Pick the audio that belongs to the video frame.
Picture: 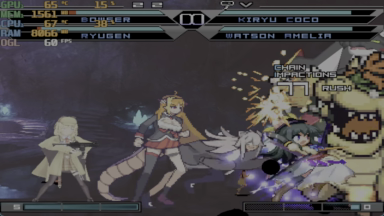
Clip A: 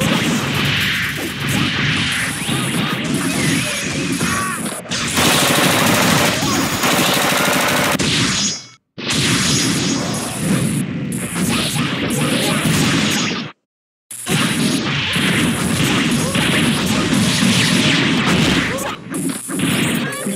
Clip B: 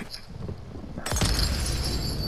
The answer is A